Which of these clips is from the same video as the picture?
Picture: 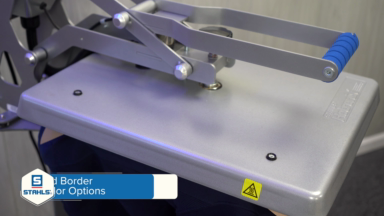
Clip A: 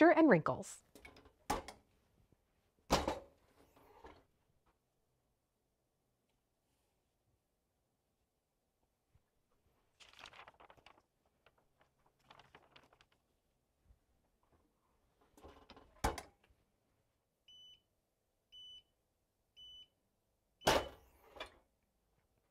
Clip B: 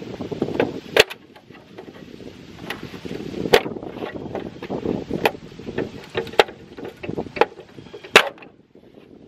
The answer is A